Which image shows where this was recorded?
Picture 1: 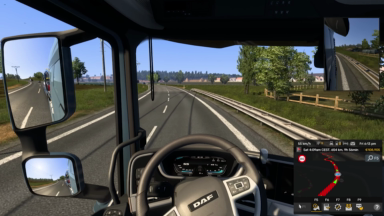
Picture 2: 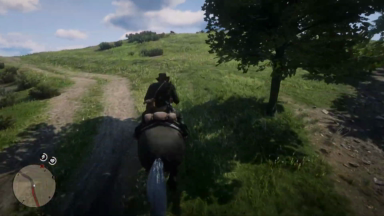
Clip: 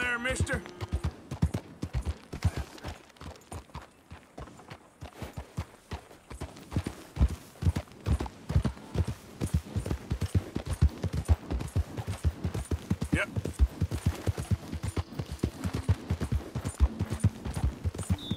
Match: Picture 2